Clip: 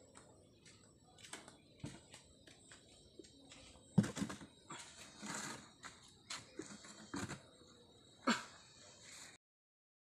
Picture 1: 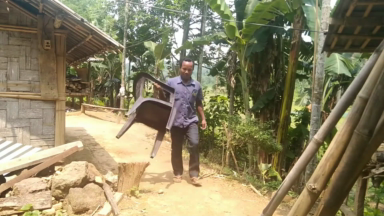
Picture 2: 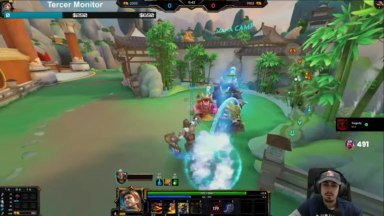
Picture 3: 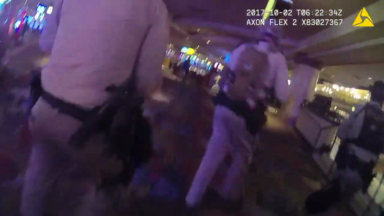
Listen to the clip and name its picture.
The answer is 1